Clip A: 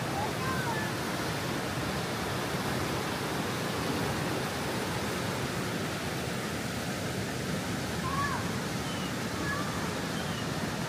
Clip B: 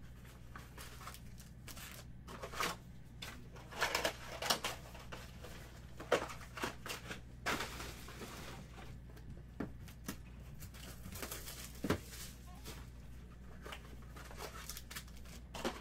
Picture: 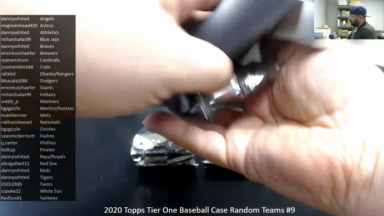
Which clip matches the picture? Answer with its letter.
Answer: B